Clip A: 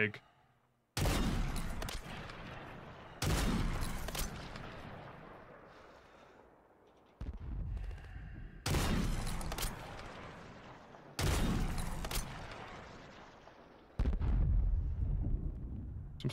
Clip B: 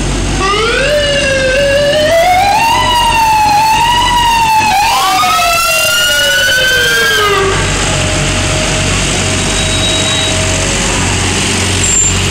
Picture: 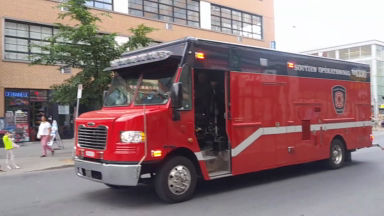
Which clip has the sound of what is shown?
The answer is B